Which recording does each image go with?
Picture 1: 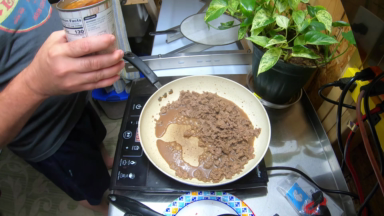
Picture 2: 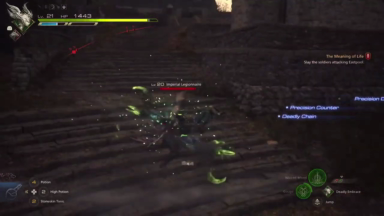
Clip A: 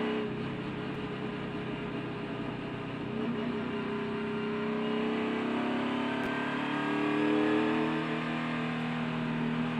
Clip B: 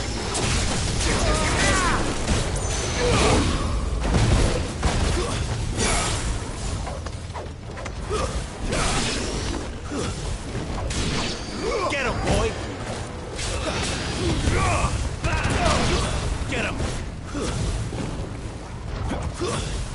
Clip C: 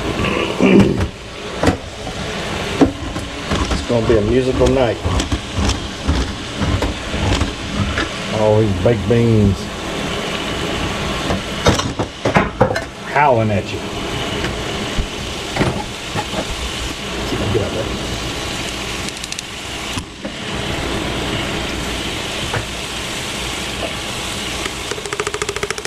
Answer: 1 C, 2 B